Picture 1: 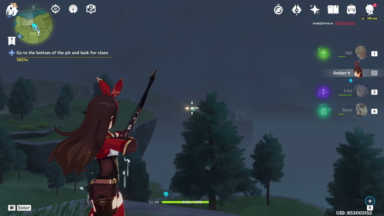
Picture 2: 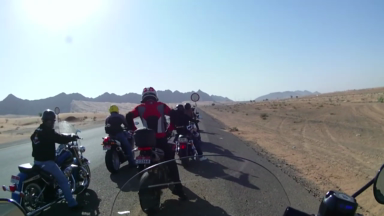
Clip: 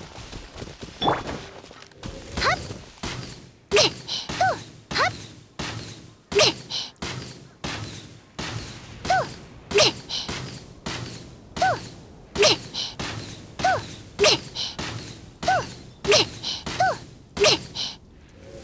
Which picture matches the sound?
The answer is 1